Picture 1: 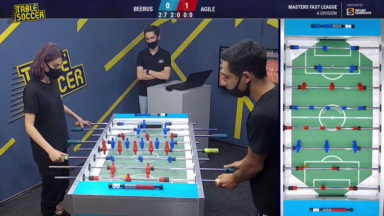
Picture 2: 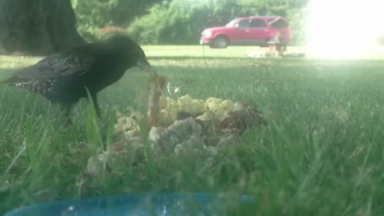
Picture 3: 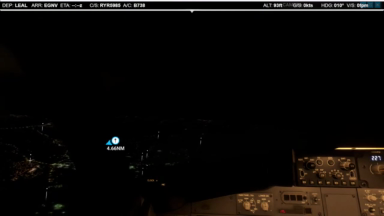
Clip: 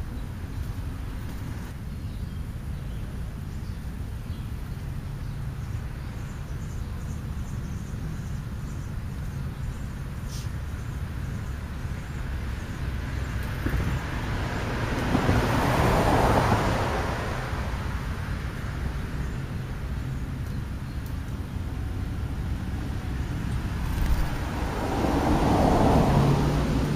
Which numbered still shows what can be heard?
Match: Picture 2